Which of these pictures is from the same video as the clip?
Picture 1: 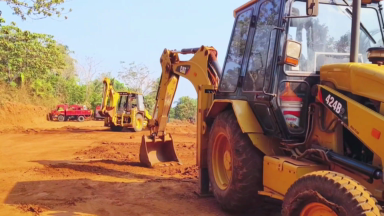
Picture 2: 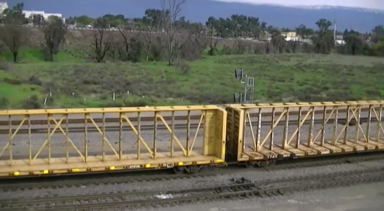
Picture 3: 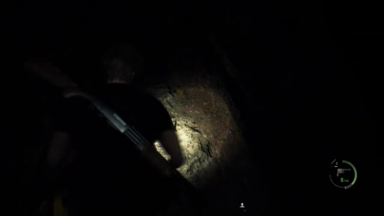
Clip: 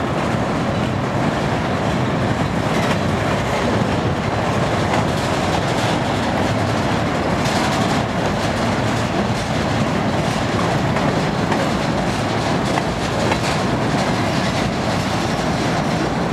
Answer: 2